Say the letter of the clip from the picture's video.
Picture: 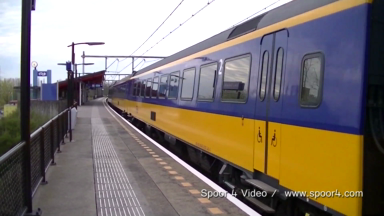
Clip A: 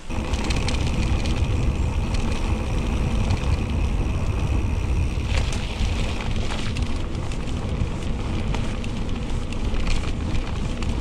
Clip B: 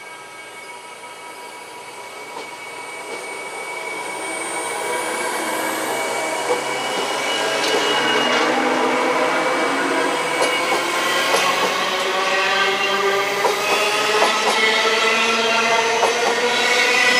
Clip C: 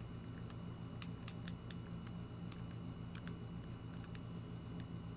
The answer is B